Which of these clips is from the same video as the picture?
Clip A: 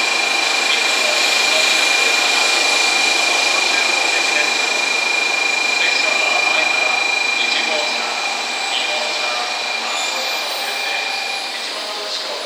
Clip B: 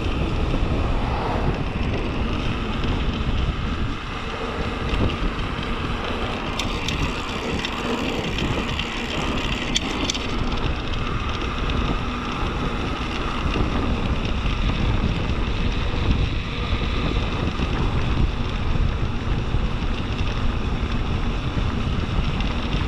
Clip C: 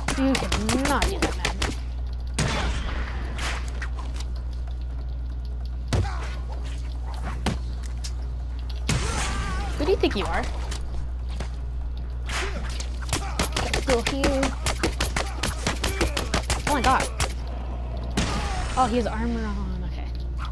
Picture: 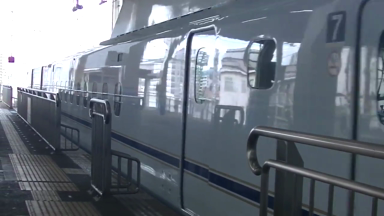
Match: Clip A